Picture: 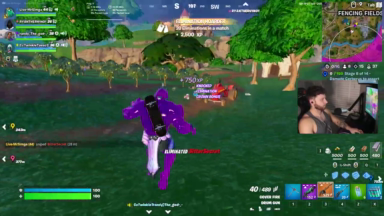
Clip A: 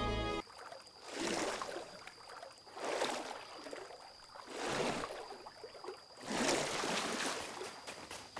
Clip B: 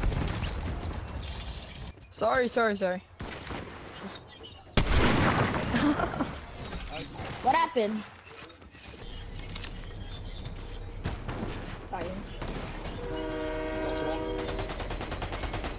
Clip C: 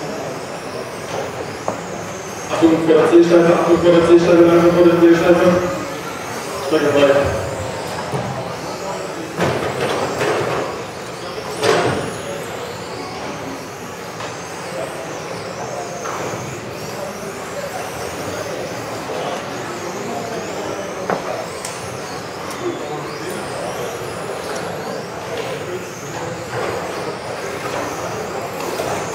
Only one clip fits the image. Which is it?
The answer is B